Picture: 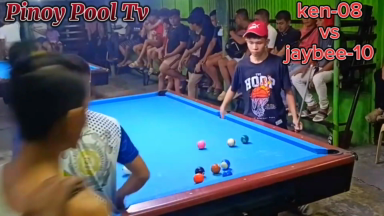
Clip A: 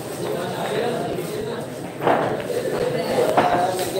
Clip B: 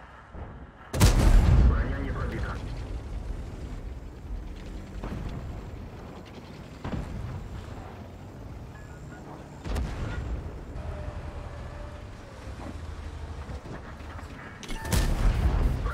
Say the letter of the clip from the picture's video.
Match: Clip A